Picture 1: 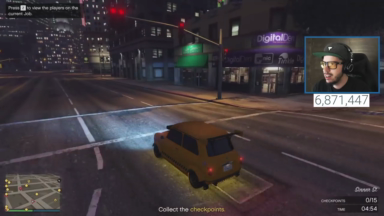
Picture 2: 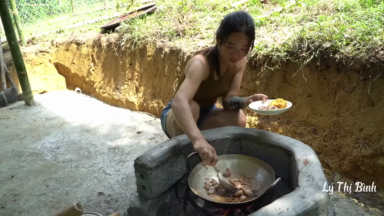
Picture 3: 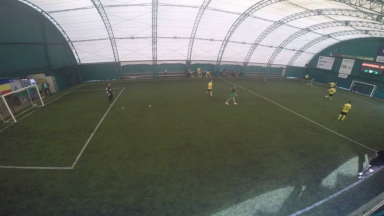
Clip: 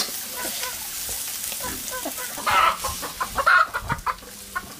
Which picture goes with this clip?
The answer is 2